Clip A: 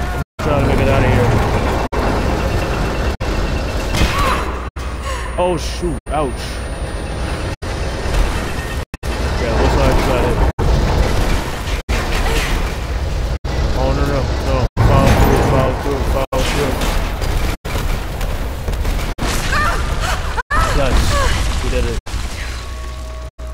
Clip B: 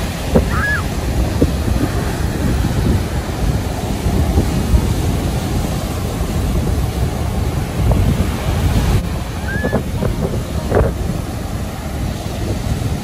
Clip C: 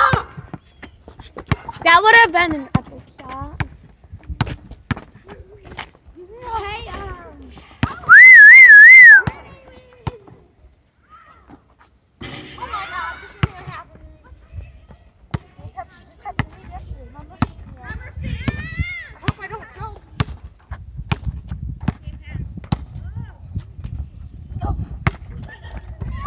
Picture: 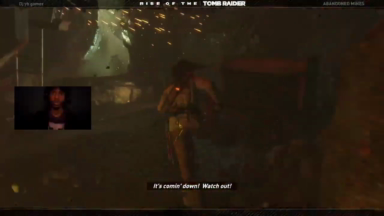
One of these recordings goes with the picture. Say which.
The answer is A